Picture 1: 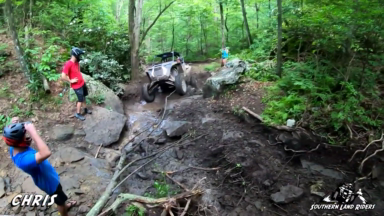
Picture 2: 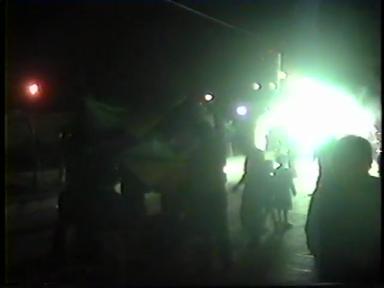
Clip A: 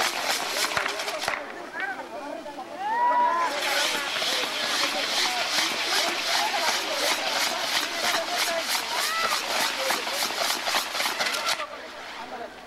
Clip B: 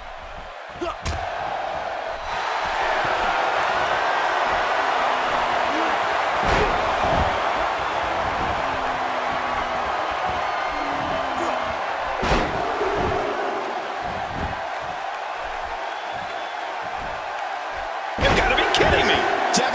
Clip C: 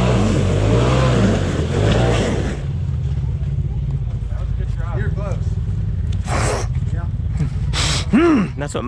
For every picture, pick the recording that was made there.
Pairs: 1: C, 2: A